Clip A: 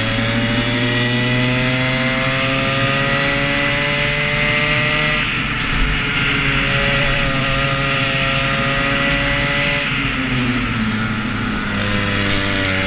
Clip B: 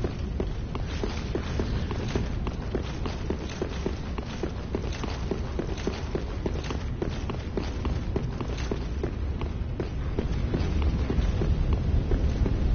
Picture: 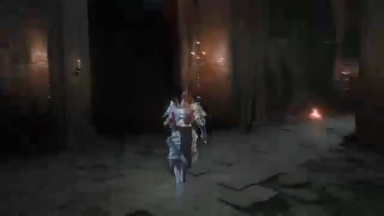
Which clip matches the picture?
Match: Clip B